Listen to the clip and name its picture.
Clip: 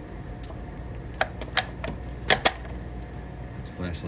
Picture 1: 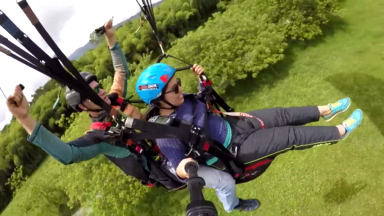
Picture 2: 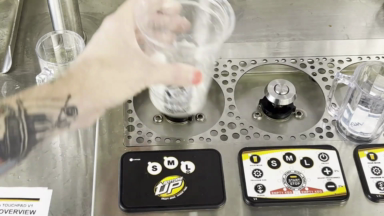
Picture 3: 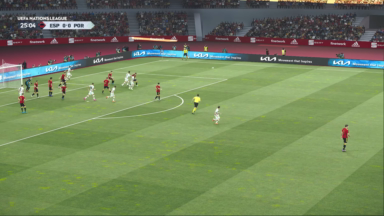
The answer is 2